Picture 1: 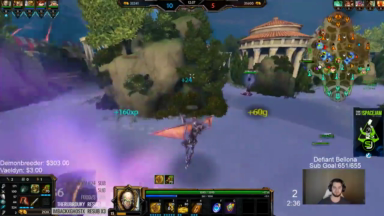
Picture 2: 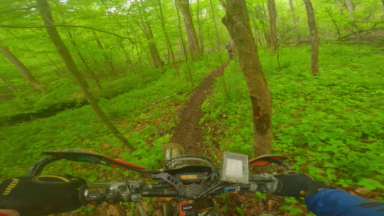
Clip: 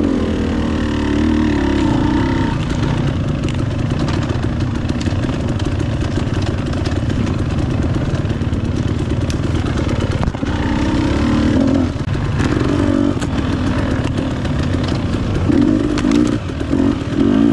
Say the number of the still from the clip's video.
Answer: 2